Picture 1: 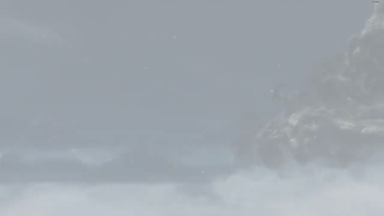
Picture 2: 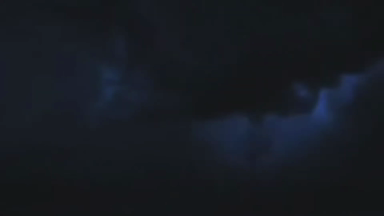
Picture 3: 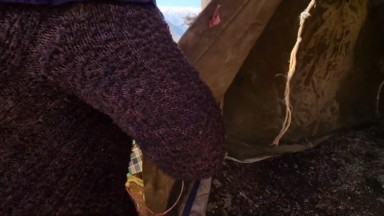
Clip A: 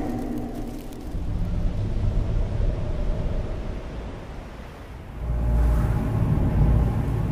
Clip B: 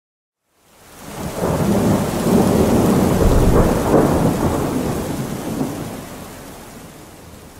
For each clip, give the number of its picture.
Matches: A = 1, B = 2